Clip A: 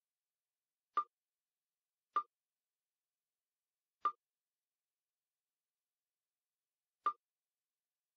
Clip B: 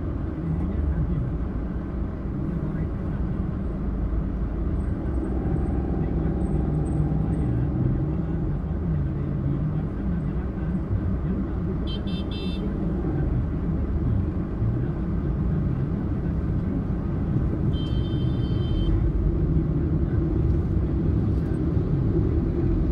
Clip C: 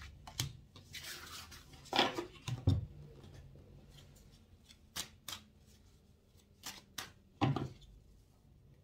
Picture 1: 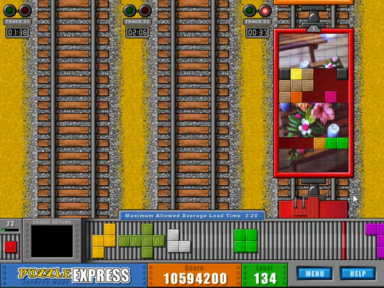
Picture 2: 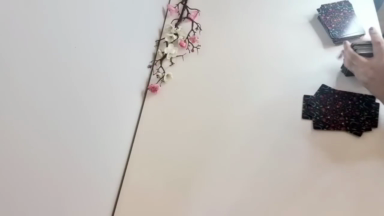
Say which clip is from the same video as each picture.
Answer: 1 A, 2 C